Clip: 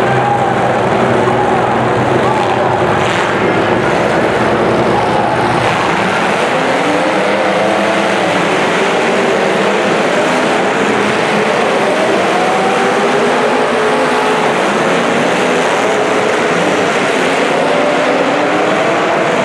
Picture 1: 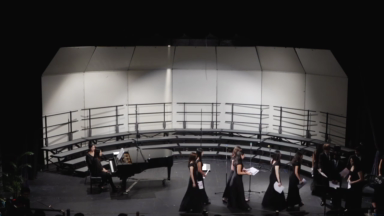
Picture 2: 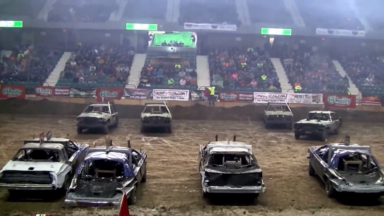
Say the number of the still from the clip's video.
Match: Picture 2